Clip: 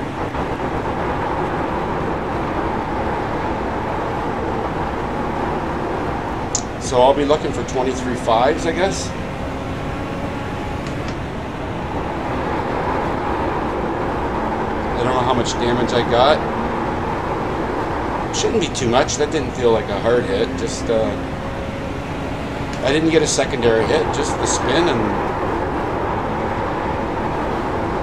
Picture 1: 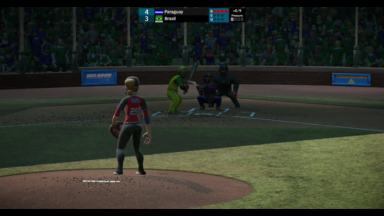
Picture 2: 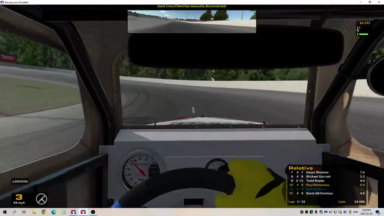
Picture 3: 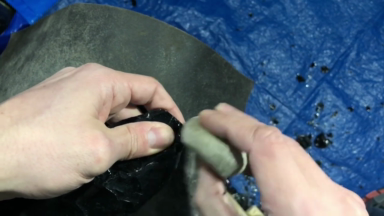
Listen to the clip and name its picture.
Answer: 2